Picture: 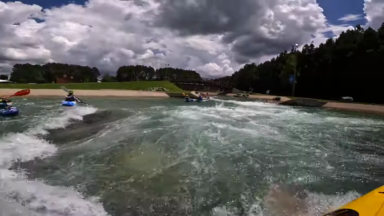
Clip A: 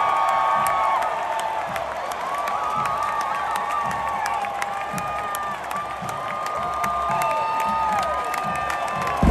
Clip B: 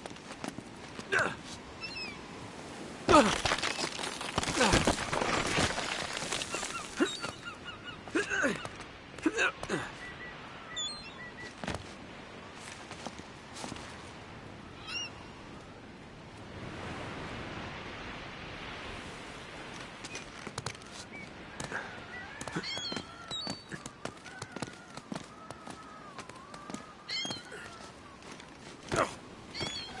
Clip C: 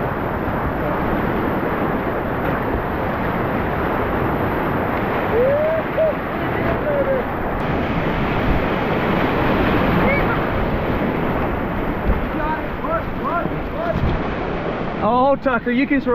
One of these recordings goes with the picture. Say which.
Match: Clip C